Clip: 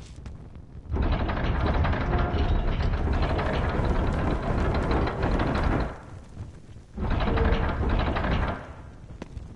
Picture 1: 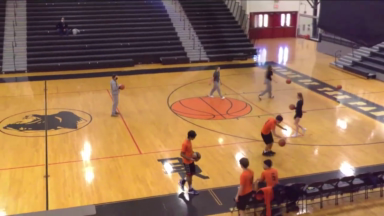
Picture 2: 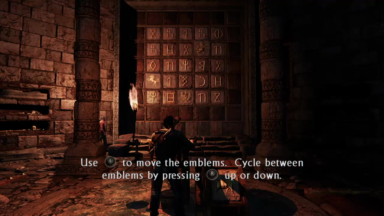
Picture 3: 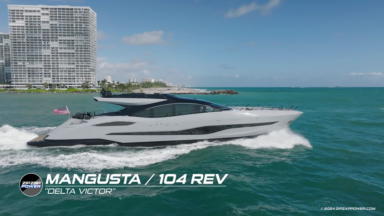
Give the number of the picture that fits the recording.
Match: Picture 2